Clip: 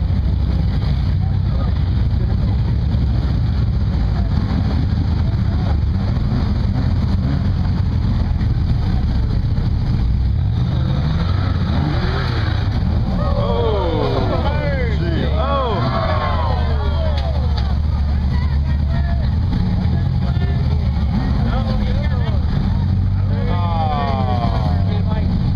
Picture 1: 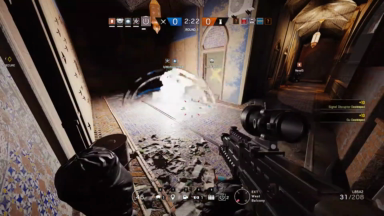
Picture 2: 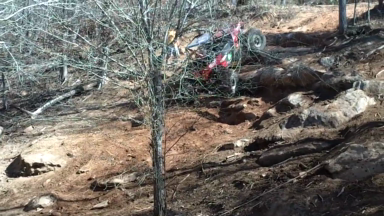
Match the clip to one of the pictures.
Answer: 2